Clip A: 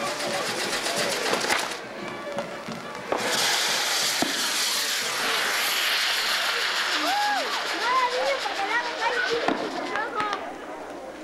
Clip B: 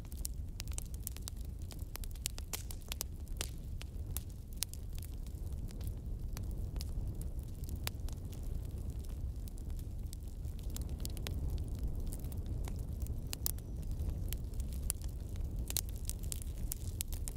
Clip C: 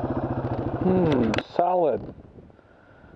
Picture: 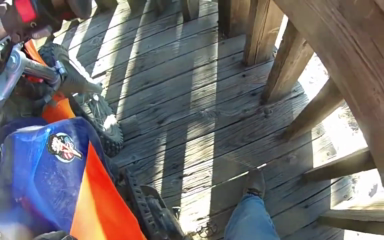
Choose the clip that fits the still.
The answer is C